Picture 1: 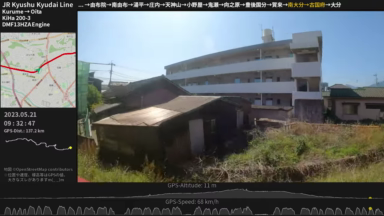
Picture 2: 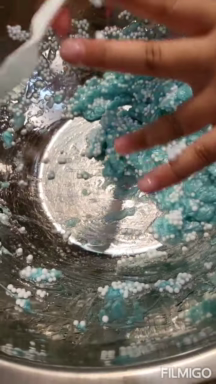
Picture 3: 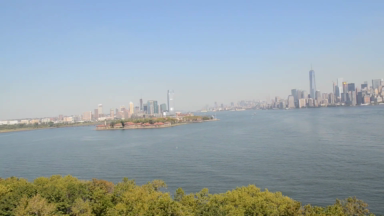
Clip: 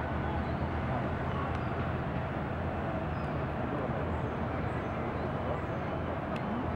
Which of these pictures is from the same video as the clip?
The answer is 3